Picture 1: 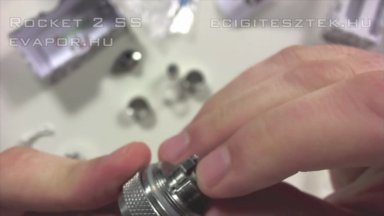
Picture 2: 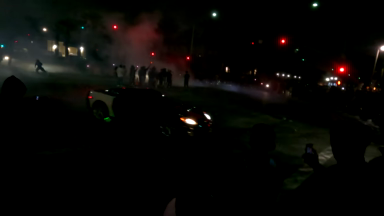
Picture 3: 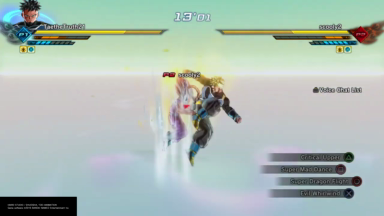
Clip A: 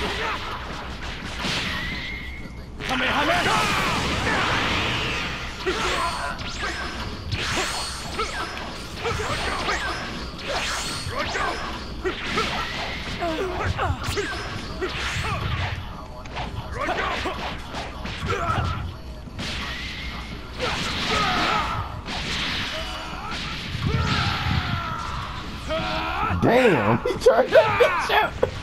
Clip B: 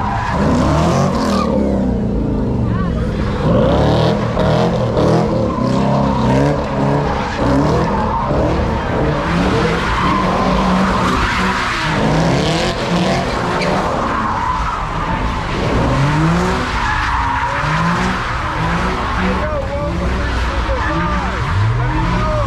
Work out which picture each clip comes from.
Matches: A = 3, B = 2